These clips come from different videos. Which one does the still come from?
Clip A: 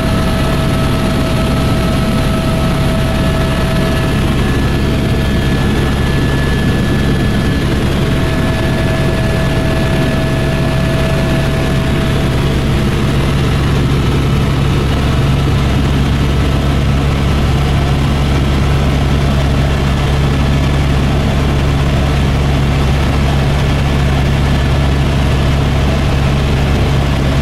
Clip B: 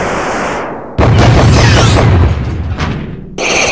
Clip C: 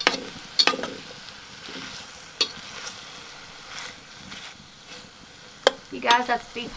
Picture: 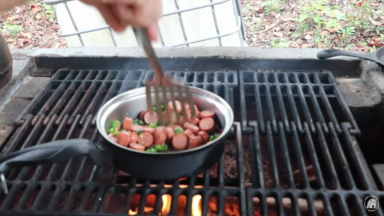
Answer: C